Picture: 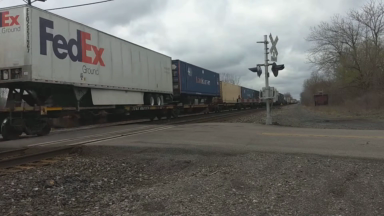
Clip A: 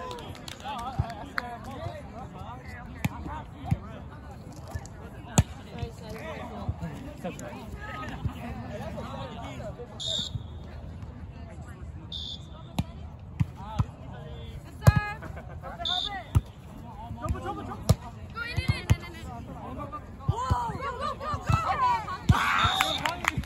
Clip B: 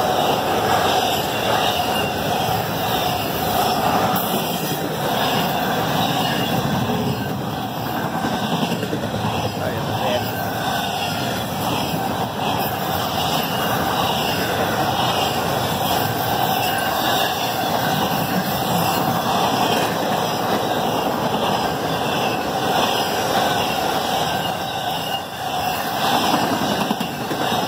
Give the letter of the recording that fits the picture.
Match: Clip B